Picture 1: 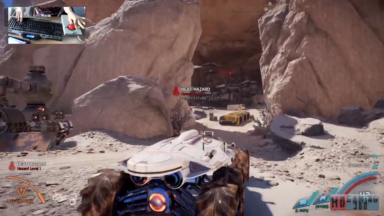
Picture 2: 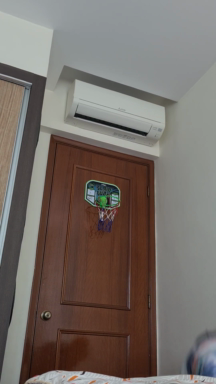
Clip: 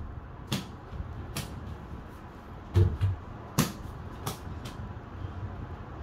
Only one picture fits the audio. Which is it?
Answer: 2